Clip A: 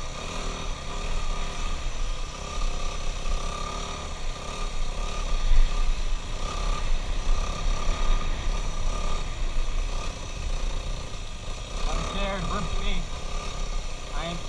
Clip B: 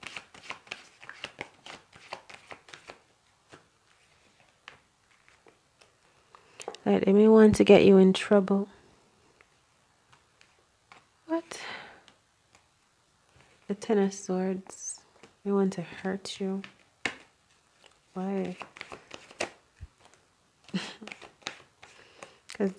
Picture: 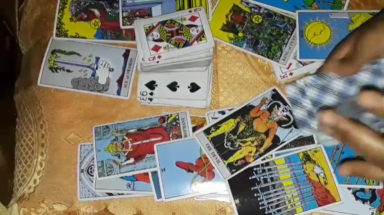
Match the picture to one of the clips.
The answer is B